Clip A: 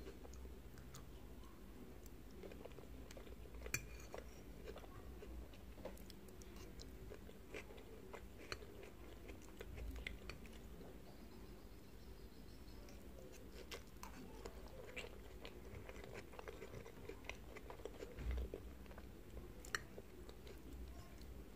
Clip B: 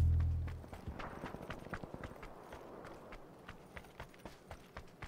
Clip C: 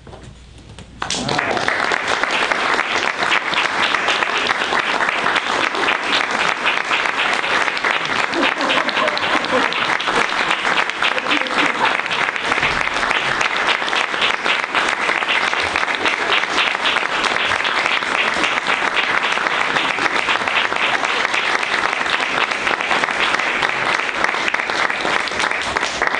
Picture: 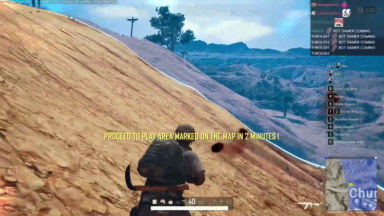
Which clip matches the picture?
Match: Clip B